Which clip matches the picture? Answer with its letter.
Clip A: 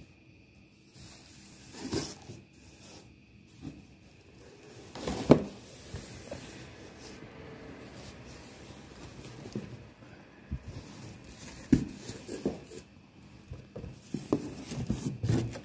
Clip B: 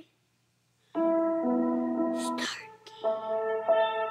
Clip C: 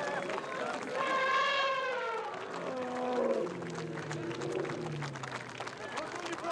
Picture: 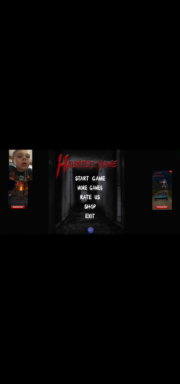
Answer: B